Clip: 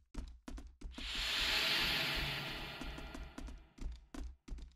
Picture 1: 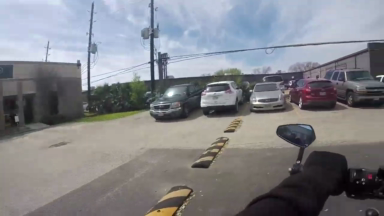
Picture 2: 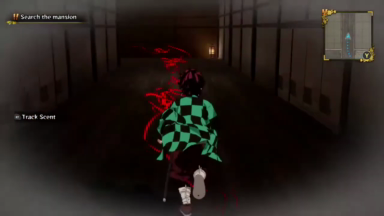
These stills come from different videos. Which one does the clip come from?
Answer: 2